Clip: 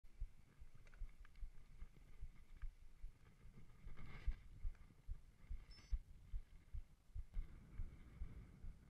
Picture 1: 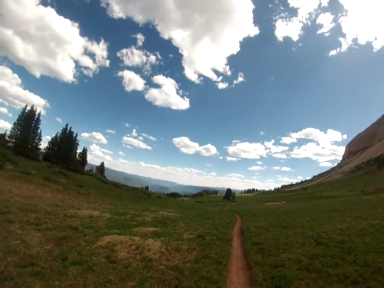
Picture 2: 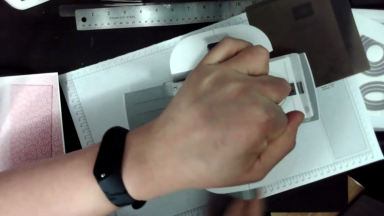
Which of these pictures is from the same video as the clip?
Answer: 1